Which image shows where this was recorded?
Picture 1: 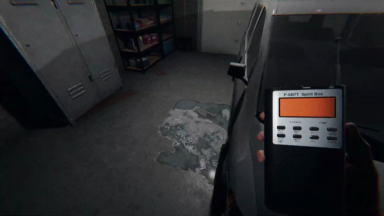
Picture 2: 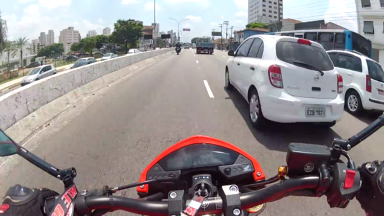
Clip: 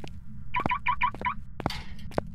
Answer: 1